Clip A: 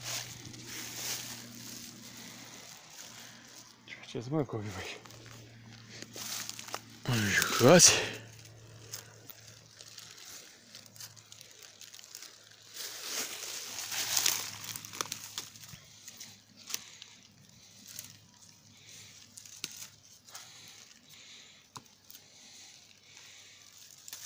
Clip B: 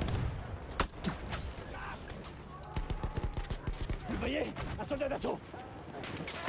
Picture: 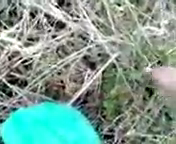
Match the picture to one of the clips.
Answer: A